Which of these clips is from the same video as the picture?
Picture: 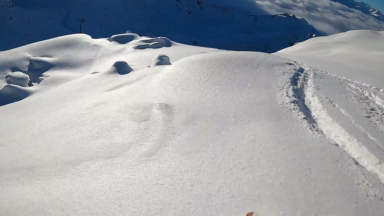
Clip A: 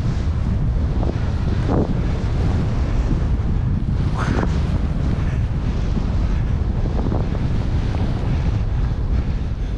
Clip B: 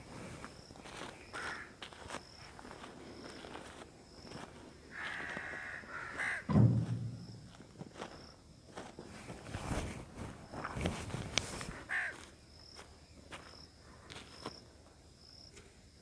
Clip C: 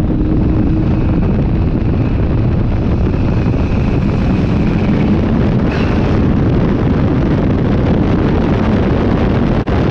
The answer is A